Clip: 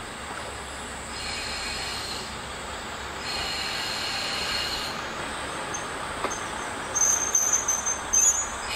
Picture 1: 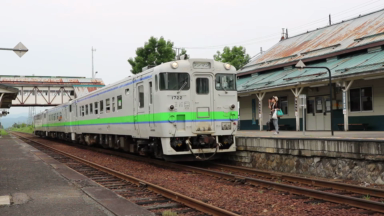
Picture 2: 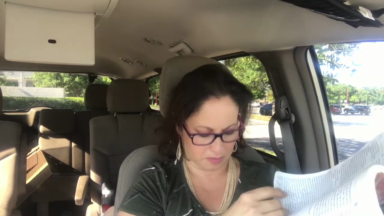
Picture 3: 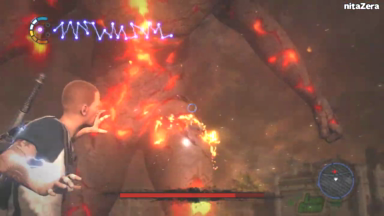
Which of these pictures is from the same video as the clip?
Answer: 1